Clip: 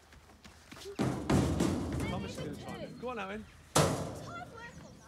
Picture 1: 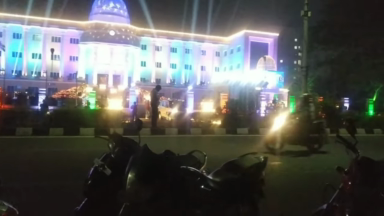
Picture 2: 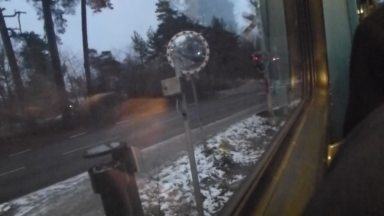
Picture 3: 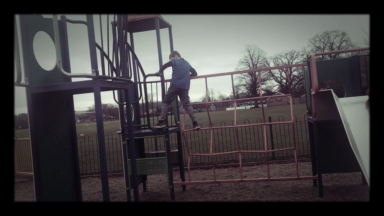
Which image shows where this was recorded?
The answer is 3